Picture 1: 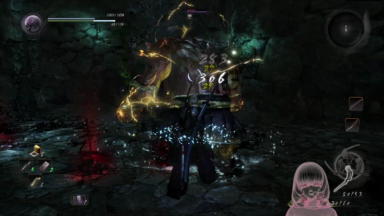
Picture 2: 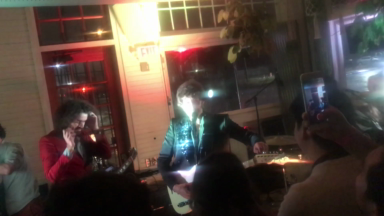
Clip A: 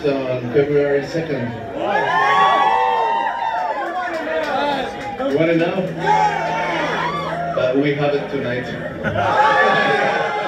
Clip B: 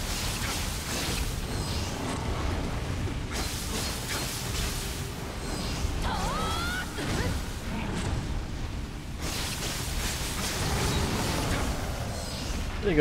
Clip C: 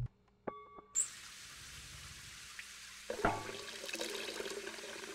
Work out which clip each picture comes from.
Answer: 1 B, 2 A